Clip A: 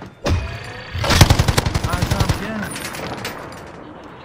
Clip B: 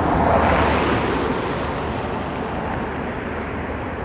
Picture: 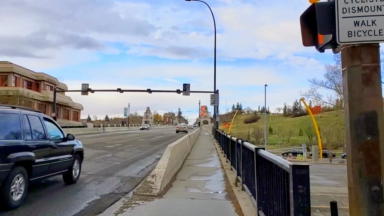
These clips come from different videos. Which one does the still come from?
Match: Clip B